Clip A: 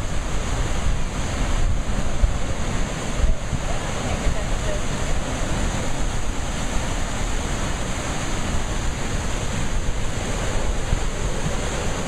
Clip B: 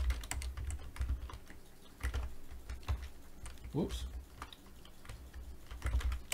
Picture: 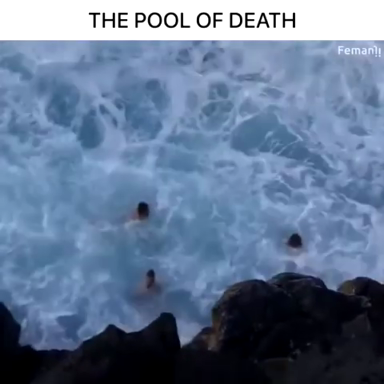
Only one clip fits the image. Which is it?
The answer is A